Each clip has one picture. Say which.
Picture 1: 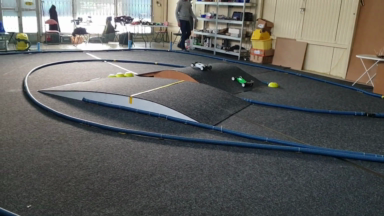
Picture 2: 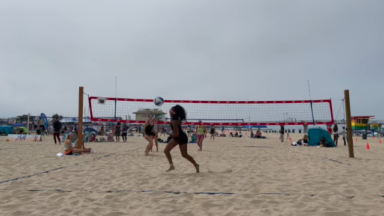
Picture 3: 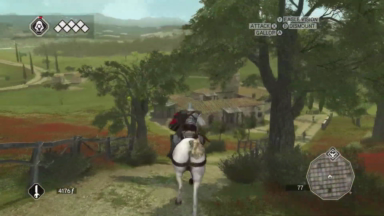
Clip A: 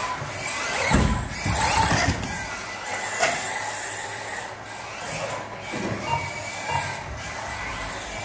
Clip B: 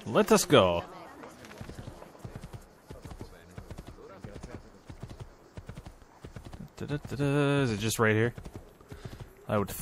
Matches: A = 1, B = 3